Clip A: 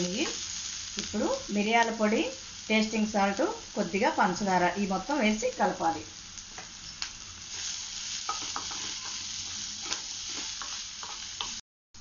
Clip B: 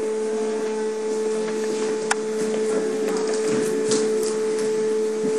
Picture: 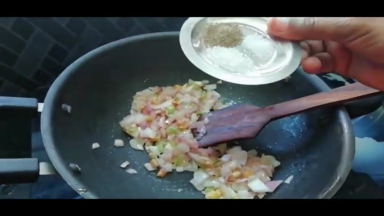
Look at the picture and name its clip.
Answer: A